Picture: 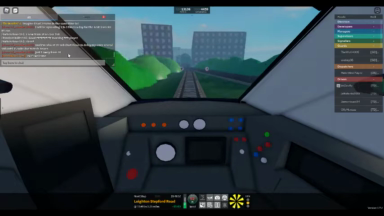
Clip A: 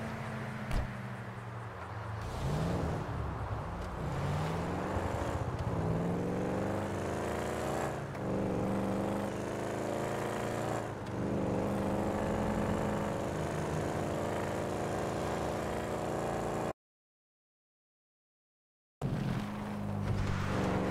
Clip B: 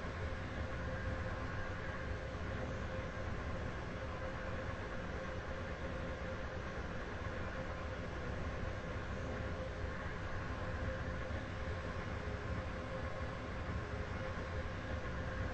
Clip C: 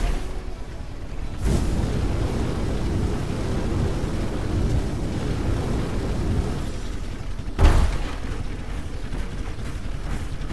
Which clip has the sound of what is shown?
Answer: B